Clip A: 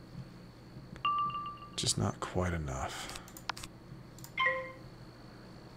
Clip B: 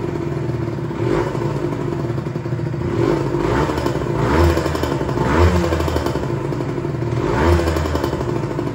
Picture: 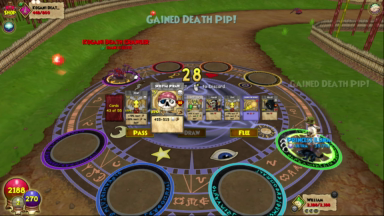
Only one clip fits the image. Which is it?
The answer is A